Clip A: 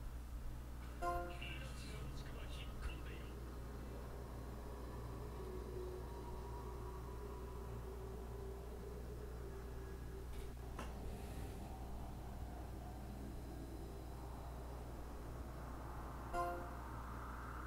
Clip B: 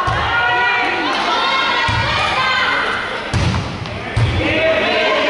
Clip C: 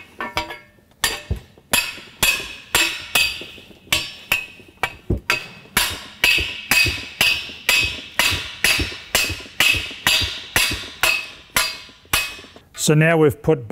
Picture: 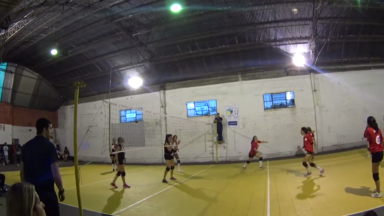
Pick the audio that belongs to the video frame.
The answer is B